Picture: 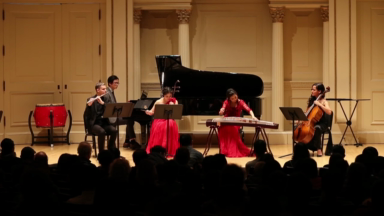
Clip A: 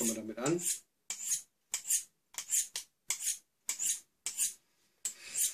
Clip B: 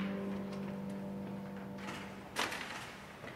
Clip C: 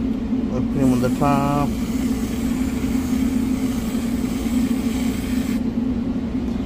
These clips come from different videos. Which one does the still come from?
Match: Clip B